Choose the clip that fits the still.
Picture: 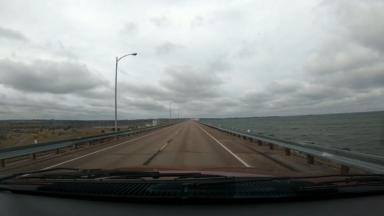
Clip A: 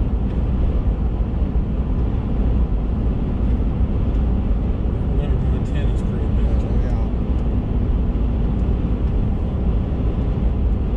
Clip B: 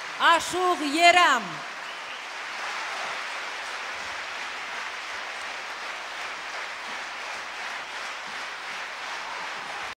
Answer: A